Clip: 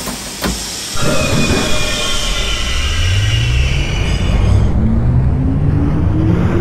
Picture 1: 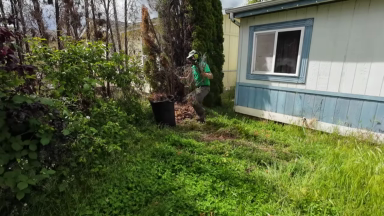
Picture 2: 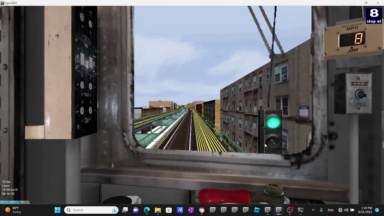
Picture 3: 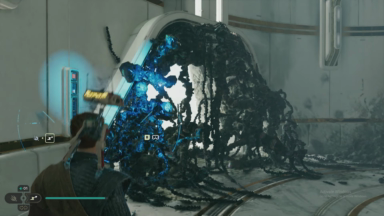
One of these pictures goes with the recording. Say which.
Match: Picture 2